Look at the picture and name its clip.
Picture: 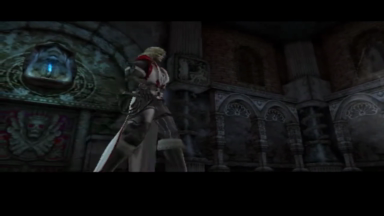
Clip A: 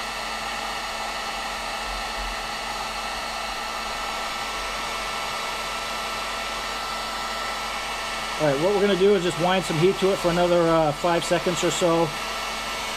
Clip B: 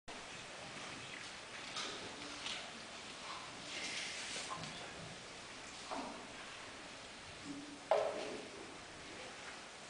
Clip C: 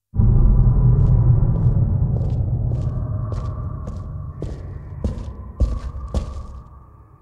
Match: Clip C